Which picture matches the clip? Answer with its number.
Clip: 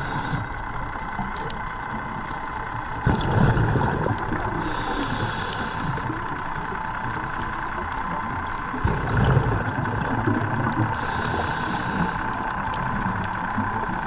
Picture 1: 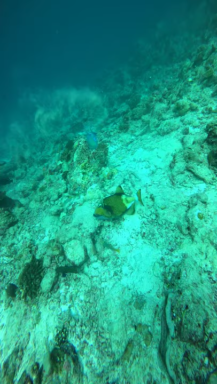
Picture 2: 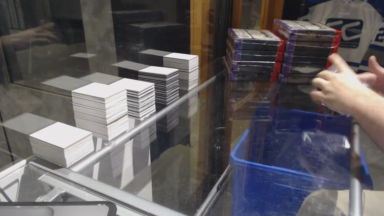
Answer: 1